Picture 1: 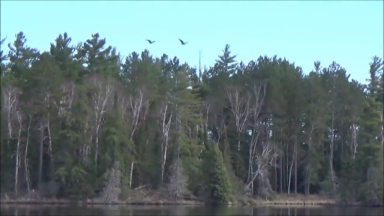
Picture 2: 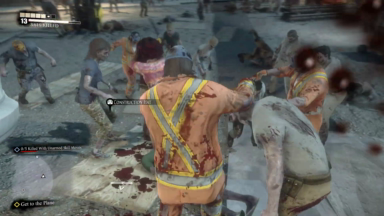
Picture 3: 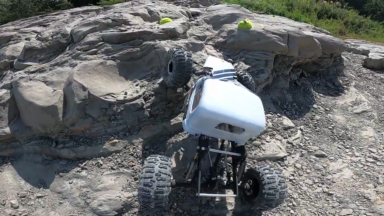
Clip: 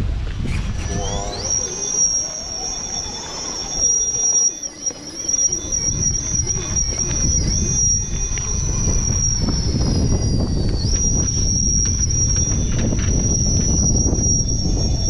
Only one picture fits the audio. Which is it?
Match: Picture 3